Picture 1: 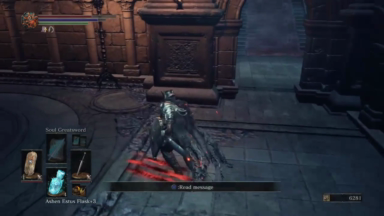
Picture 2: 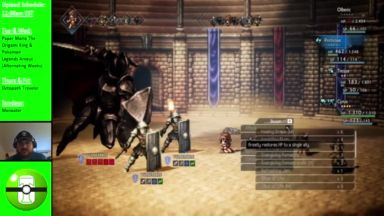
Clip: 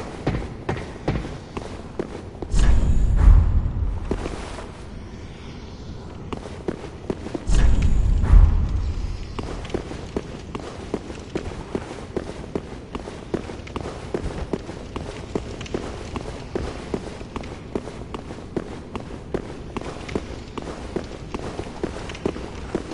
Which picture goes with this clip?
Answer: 1